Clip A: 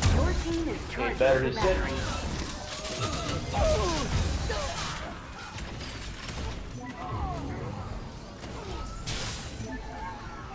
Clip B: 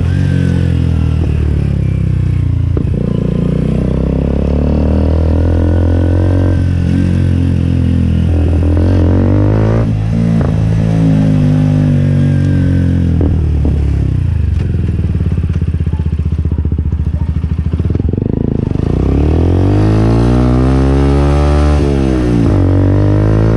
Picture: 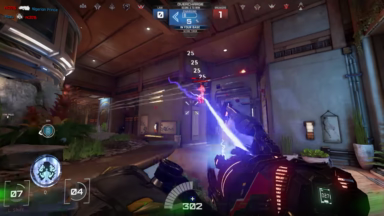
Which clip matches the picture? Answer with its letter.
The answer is A